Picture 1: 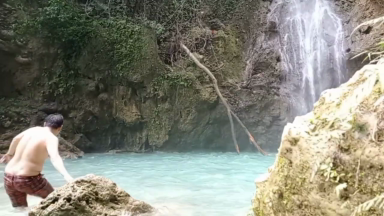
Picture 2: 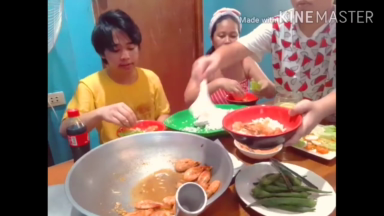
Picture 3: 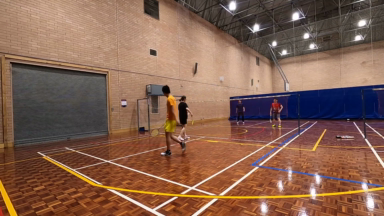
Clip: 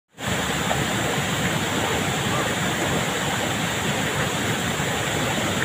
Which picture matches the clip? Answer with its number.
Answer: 1